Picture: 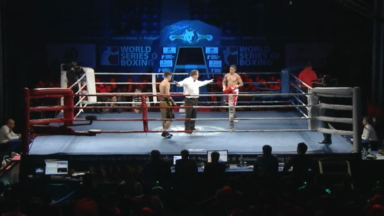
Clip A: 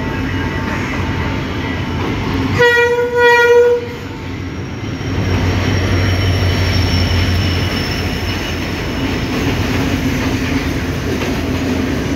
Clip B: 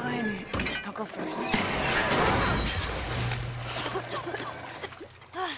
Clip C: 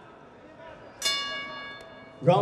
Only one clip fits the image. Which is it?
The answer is C